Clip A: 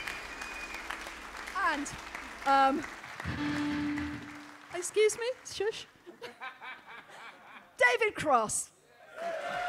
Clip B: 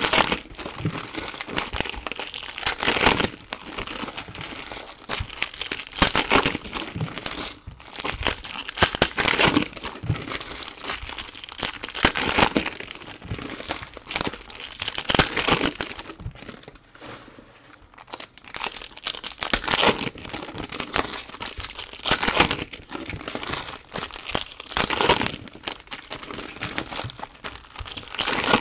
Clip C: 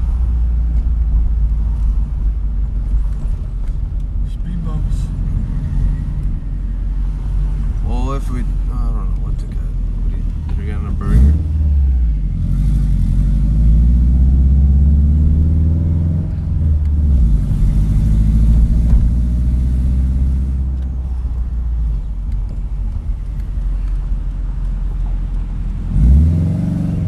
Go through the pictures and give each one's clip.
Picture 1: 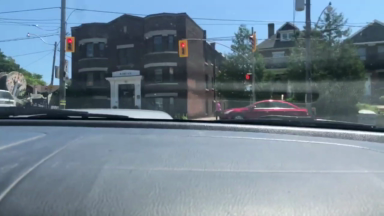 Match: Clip C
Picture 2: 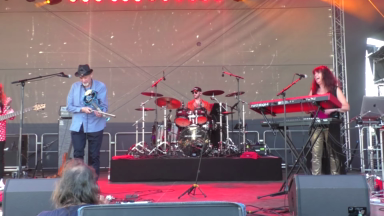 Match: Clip A